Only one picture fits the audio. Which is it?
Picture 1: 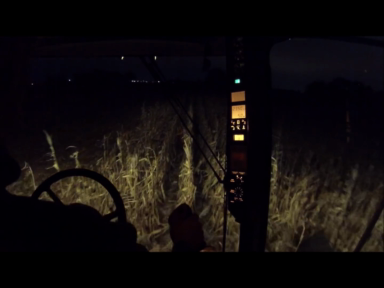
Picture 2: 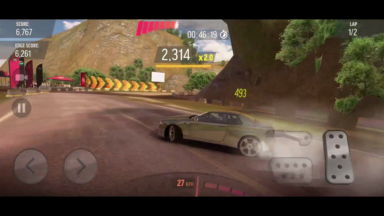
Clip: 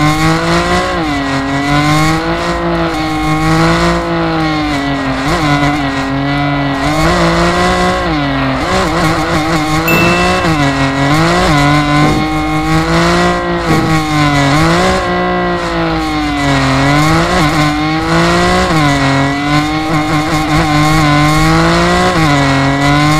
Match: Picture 2